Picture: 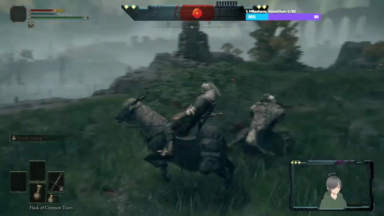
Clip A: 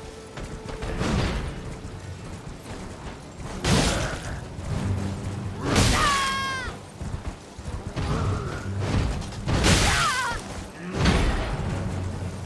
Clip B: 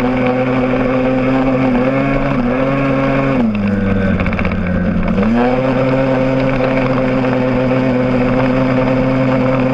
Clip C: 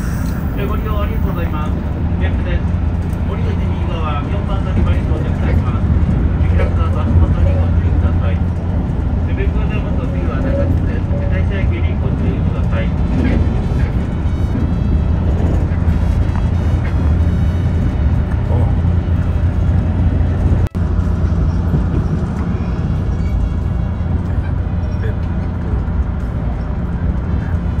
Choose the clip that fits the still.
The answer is A